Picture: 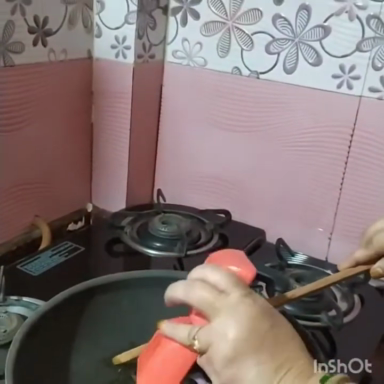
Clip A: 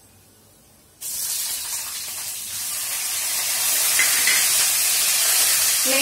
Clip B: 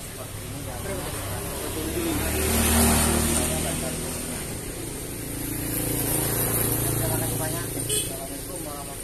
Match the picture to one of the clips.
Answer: A